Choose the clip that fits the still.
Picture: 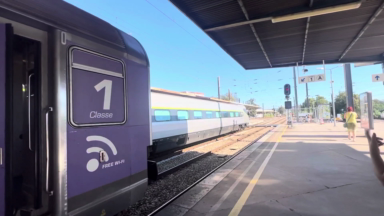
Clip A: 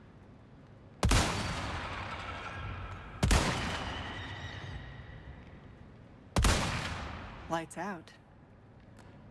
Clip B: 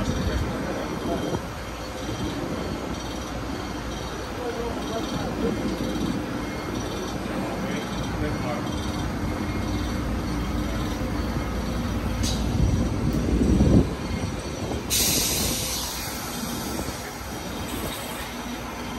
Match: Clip B